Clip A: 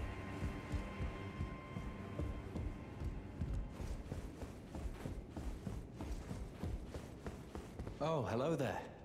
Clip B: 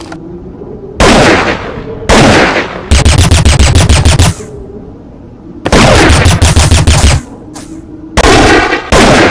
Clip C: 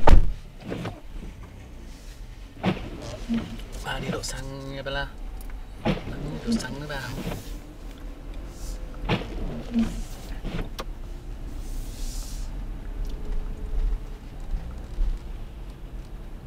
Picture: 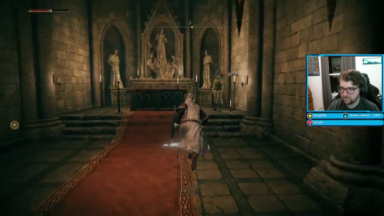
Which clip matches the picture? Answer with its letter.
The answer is A